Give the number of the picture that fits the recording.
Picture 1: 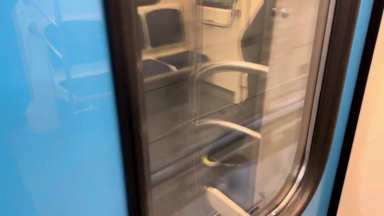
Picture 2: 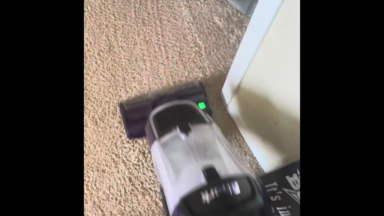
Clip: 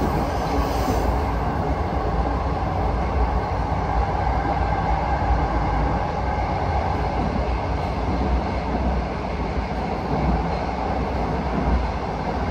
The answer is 1